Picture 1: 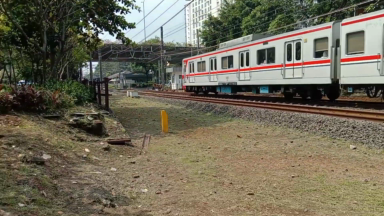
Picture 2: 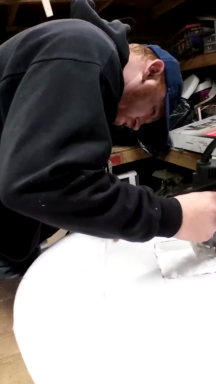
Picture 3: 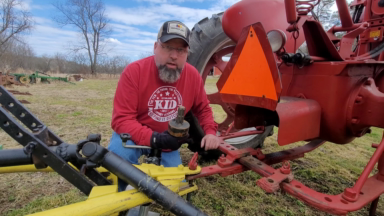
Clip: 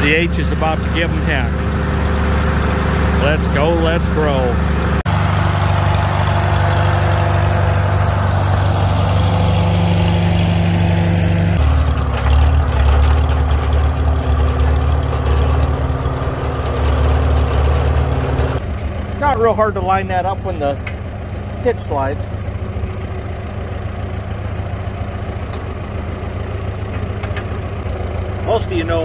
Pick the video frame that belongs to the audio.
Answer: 3